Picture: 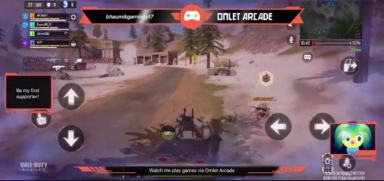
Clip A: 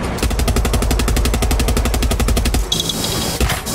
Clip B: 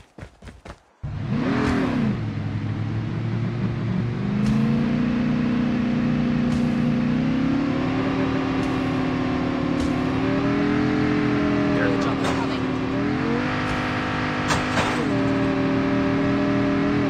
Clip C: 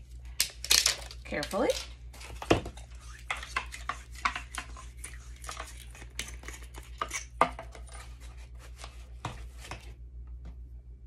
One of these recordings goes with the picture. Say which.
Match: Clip B